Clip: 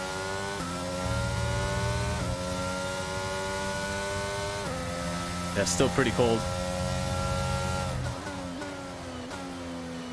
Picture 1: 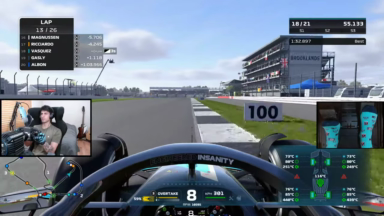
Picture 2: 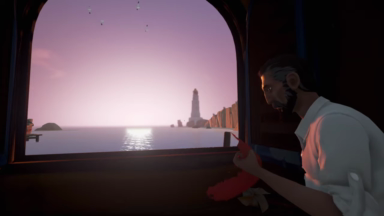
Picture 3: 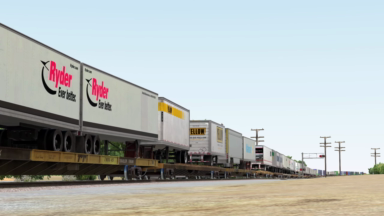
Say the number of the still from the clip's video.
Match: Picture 1